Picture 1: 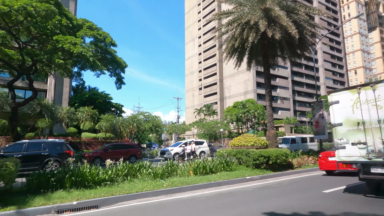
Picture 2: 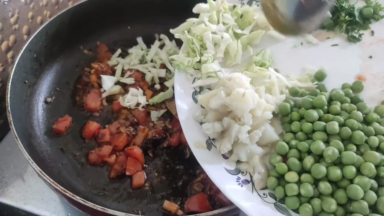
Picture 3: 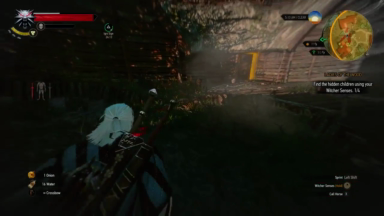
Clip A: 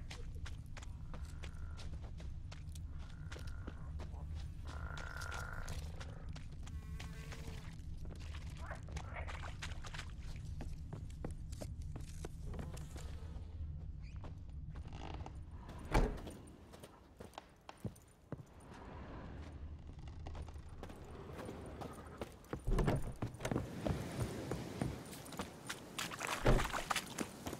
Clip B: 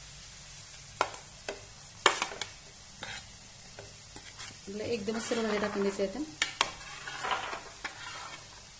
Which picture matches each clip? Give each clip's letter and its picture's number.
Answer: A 3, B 2